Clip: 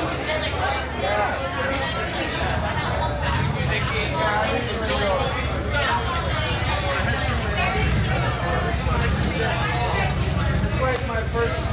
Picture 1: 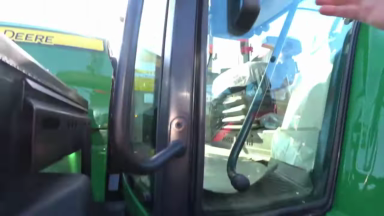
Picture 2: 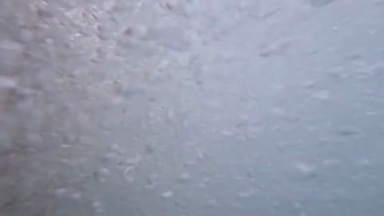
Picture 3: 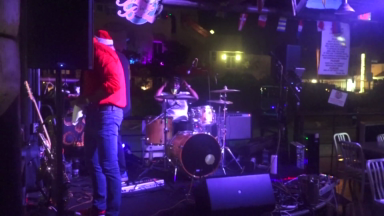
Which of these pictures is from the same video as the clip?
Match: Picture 3